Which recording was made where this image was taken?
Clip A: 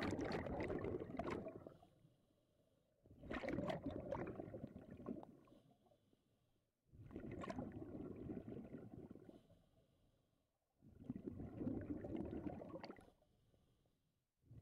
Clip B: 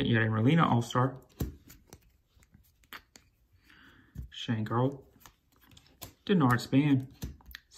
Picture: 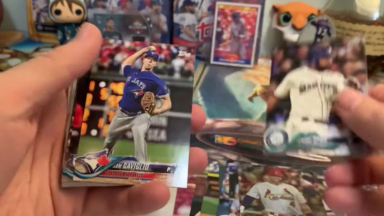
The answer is B